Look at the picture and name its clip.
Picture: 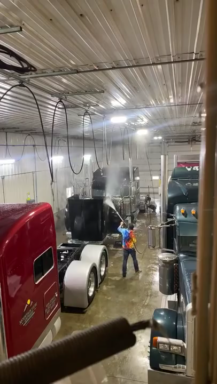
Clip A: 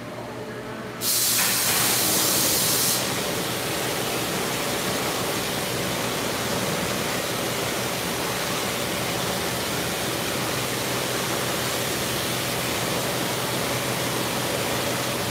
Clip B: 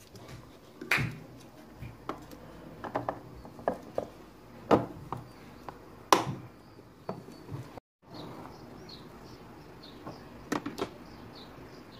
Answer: A